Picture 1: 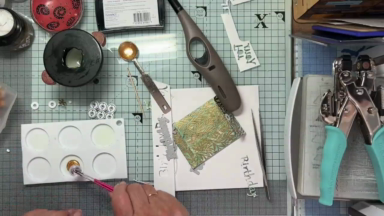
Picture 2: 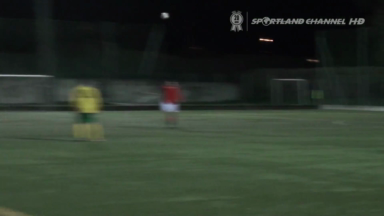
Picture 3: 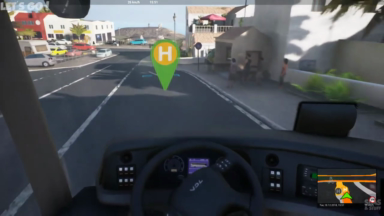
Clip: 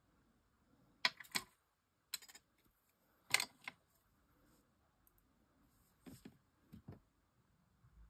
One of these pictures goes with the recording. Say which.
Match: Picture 1